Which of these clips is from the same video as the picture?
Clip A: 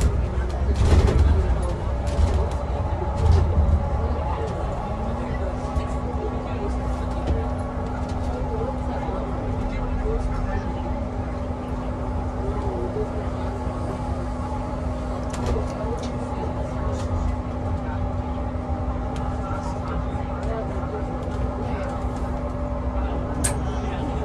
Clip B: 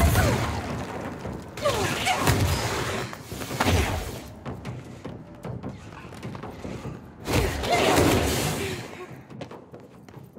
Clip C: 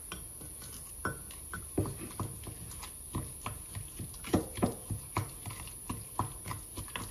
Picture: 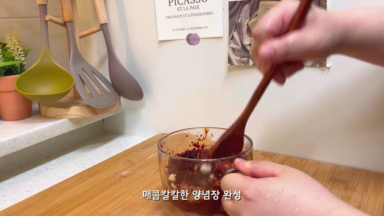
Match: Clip C